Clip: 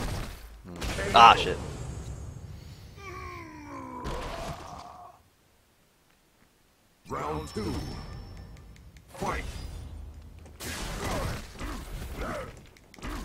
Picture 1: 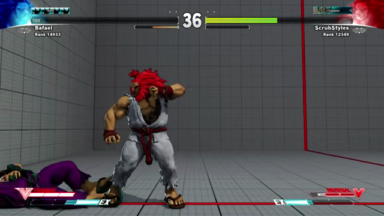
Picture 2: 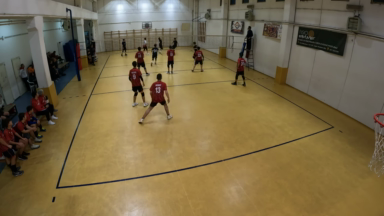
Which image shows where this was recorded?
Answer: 1